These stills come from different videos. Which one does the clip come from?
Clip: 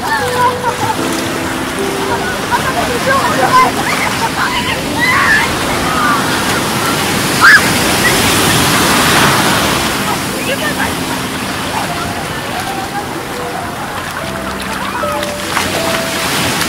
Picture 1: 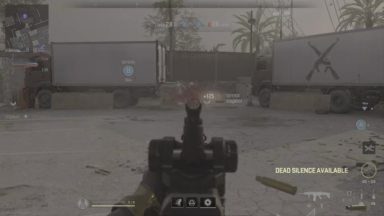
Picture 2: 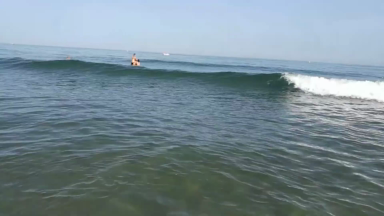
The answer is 2